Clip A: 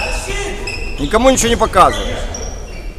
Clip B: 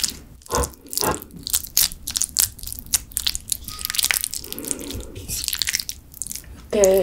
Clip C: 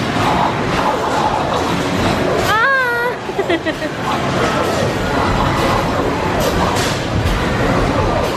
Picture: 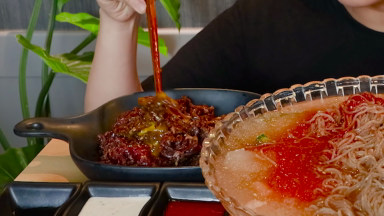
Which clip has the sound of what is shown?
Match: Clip B